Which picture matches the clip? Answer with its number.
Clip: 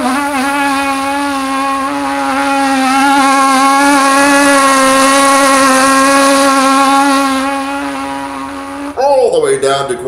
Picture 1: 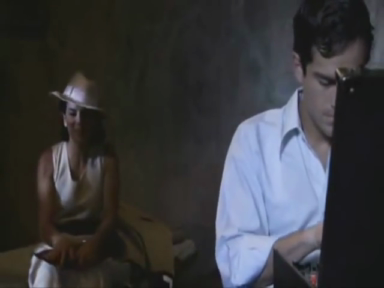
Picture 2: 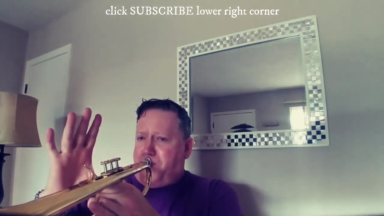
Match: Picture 2